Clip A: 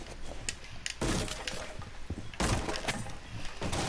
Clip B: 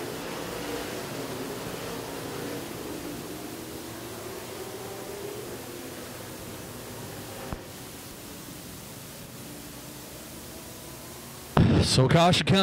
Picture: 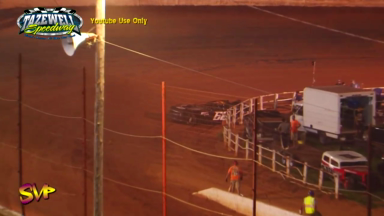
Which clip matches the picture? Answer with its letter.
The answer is B